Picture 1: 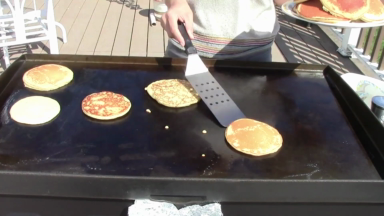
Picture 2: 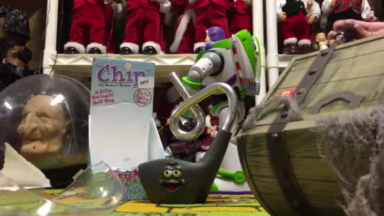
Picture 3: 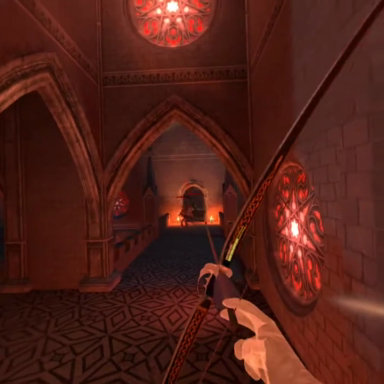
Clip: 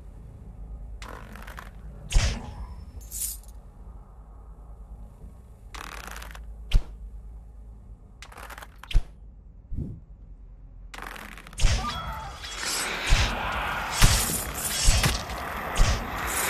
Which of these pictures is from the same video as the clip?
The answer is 3